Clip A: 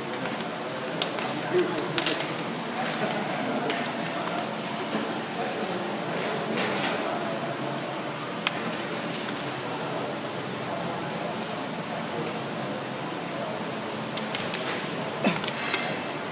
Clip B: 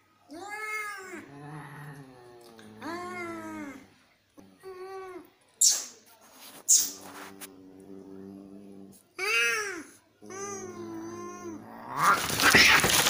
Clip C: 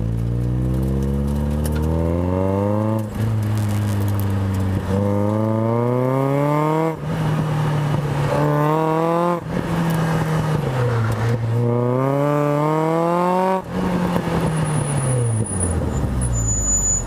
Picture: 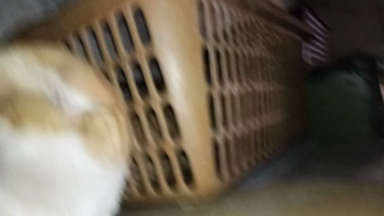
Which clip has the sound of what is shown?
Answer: B